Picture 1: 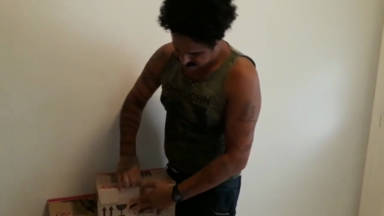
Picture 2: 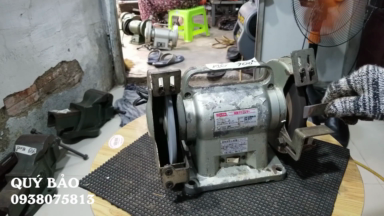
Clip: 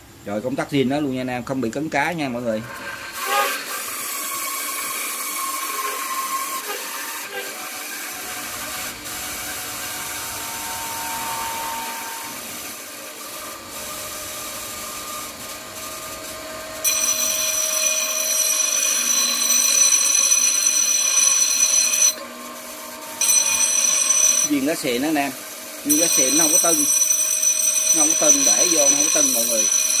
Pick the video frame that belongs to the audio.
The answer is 2